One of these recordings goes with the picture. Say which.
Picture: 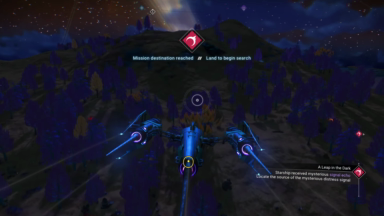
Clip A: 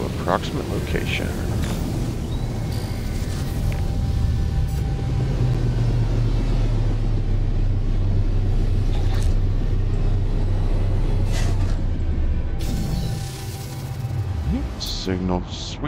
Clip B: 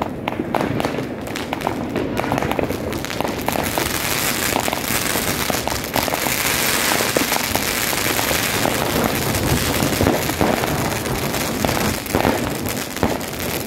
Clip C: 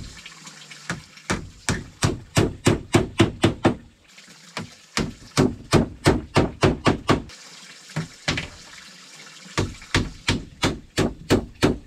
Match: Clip A